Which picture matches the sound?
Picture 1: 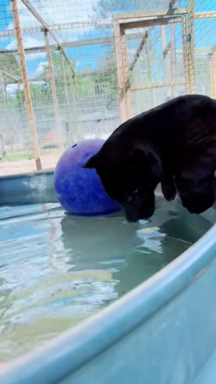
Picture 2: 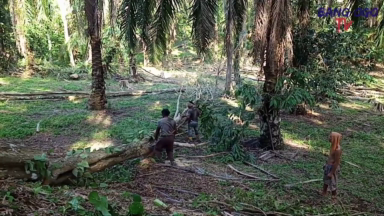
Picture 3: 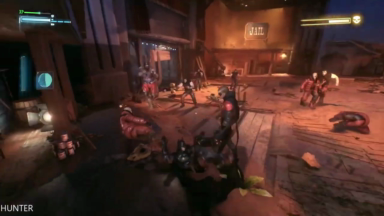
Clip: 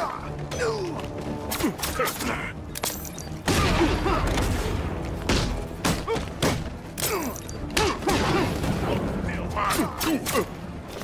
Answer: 3